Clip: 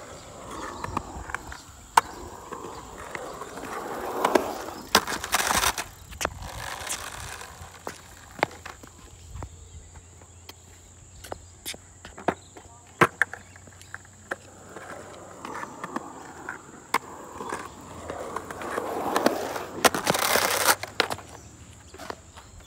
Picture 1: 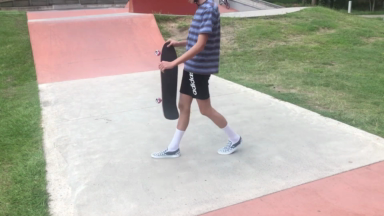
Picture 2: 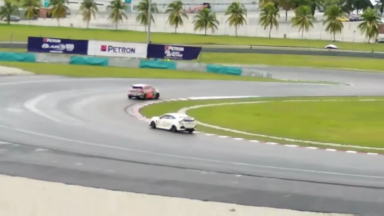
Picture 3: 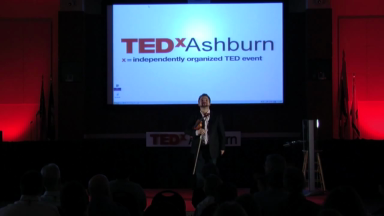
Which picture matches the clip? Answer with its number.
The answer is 1